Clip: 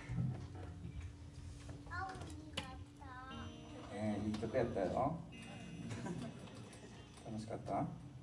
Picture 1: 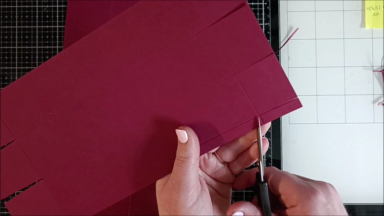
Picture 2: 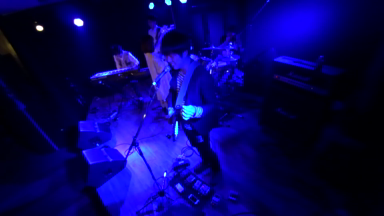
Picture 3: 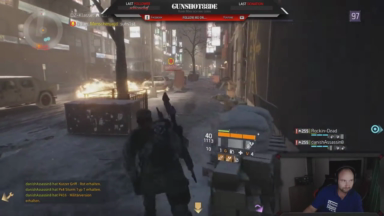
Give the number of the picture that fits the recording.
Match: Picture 2